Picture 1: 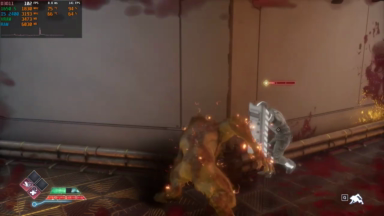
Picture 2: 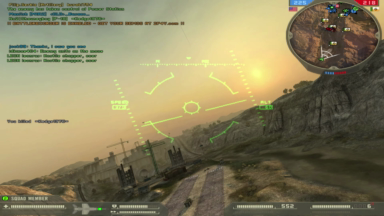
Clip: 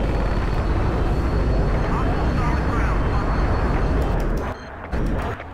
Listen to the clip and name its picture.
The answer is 2